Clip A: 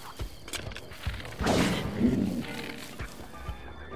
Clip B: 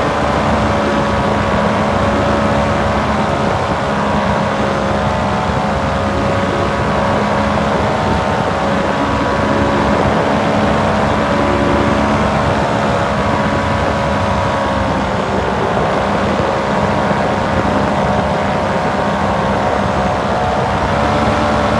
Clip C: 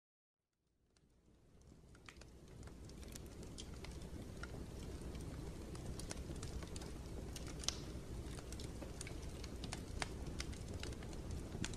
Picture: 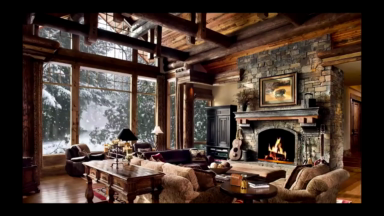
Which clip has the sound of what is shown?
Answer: C